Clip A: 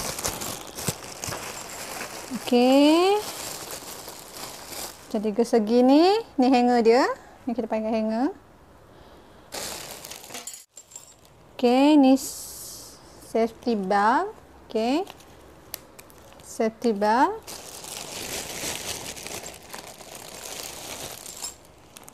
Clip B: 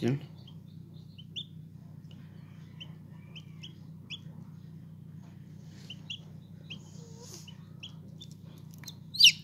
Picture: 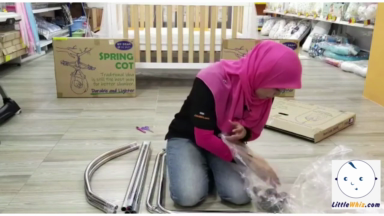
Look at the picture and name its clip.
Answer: A